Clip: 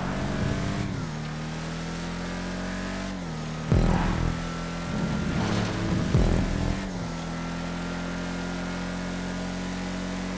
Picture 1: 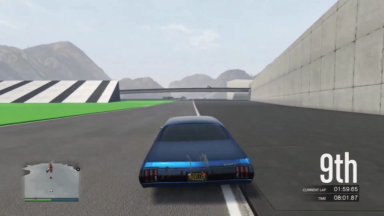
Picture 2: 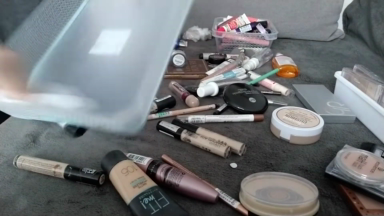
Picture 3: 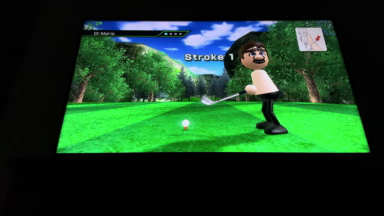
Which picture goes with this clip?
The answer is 1